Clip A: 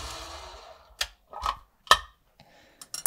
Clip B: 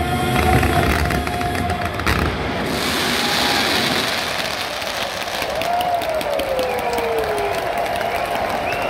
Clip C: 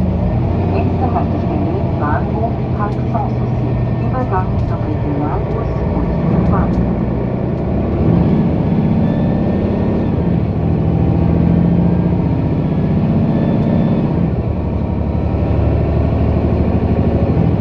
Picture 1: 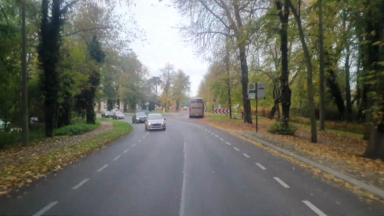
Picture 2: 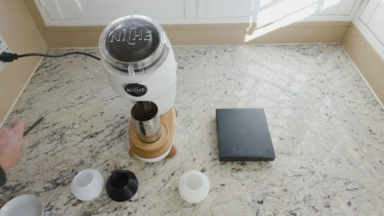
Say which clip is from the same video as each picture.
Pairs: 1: C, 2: A